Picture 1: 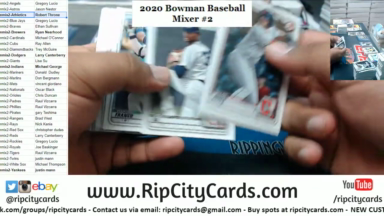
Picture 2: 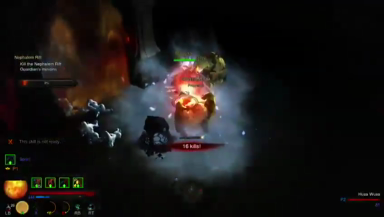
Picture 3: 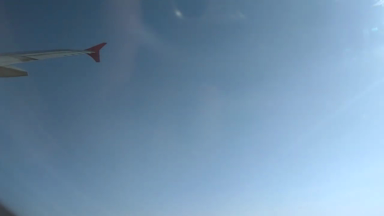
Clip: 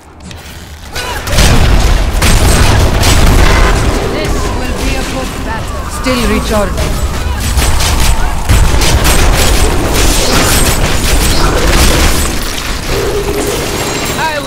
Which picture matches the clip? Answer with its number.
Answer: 2